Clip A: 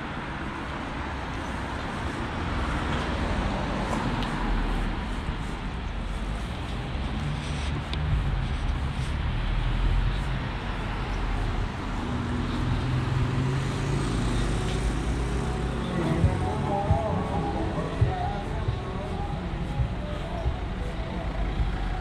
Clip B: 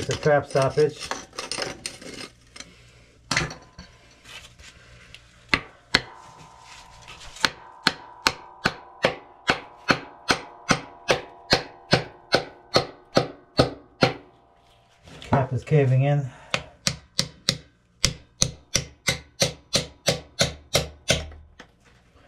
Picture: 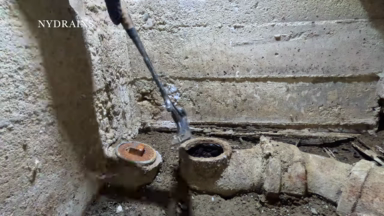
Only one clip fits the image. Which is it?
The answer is B